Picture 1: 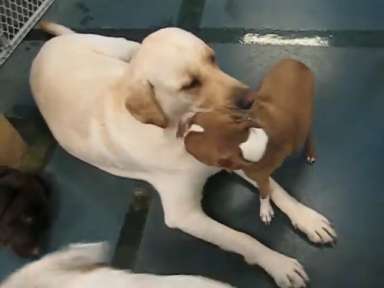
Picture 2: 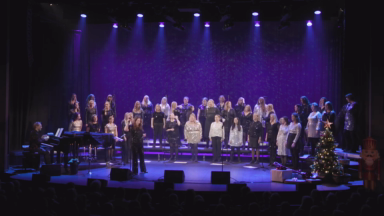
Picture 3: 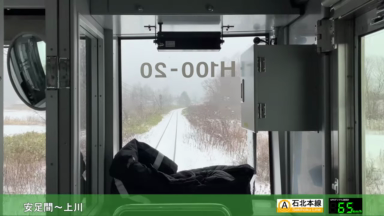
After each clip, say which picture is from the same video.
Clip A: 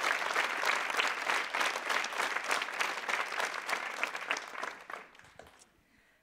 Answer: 2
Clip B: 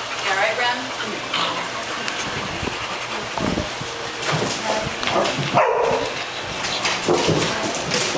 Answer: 1